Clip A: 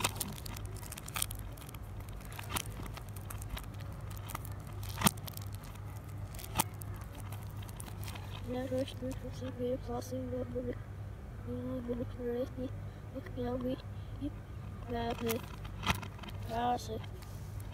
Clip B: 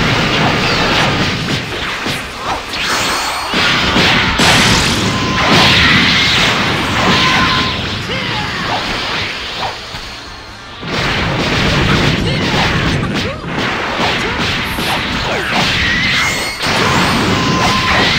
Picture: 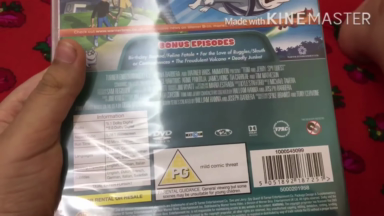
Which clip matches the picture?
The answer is A